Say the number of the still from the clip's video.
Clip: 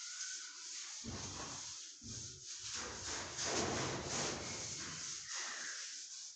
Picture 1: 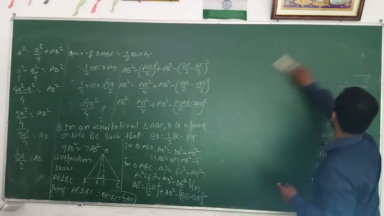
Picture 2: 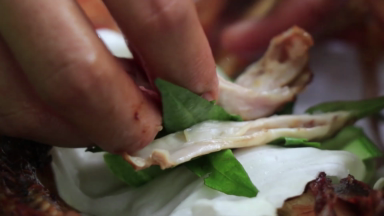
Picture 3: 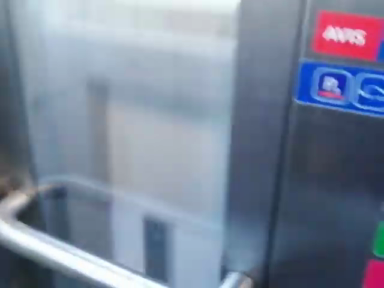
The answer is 1